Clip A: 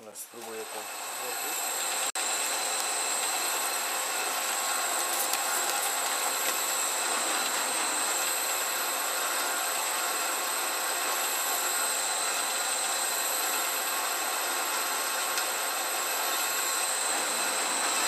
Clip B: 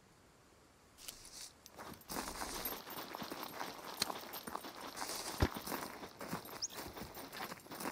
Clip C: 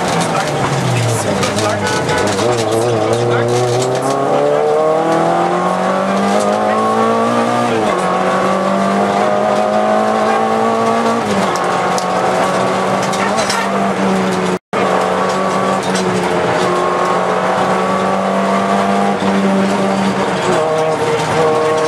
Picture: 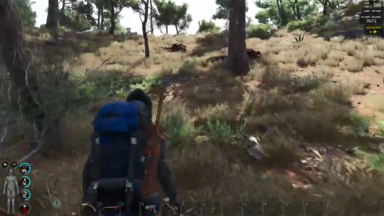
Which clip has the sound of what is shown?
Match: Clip B